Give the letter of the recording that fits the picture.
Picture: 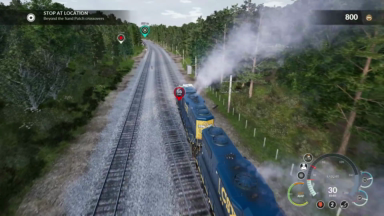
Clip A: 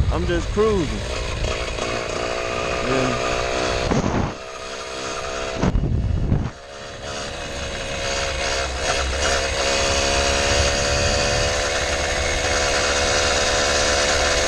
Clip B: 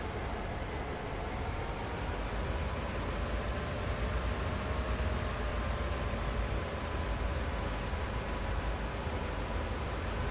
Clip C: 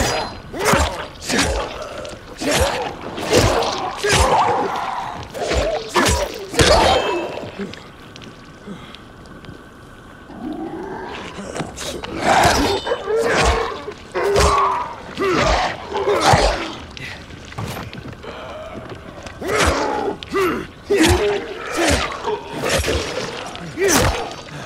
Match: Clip B